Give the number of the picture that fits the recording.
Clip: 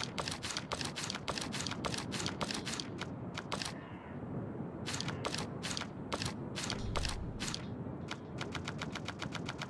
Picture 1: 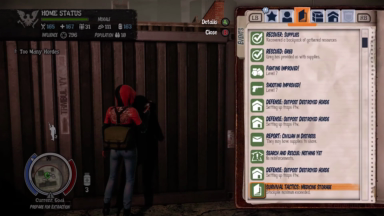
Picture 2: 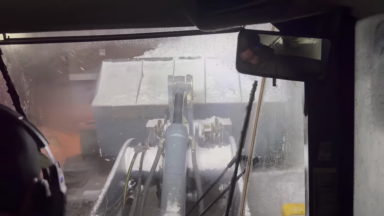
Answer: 1